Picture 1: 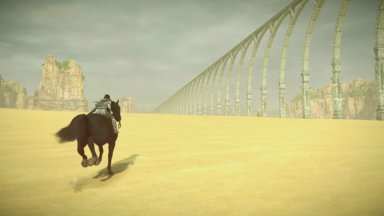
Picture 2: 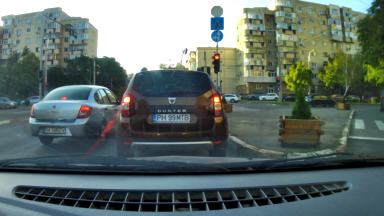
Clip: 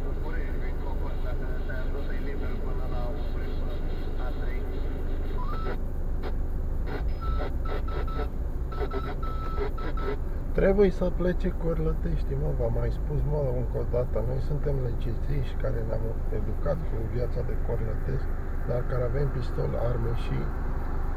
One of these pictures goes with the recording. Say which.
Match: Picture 2